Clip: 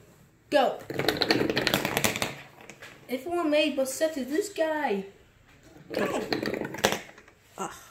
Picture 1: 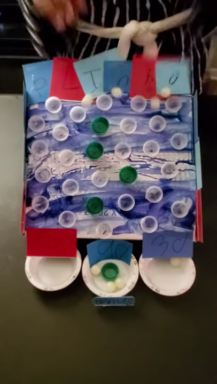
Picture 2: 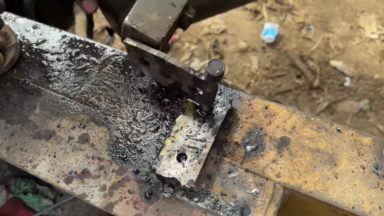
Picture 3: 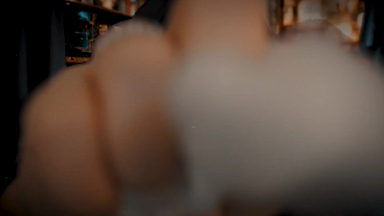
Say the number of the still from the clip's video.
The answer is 1